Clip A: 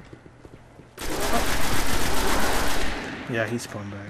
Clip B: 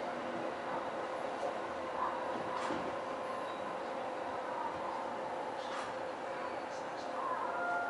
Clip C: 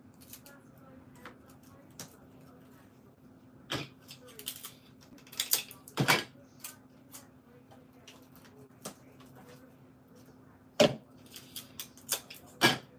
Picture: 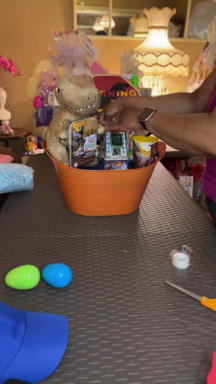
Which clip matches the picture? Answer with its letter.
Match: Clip C